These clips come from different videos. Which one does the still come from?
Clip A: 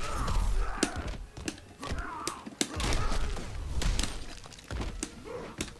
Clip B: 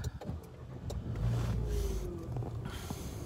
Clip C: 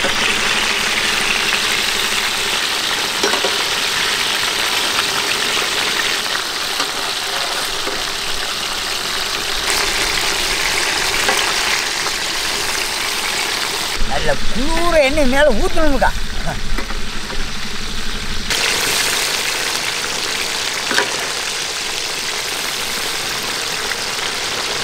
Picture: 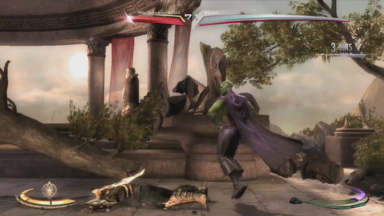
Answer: A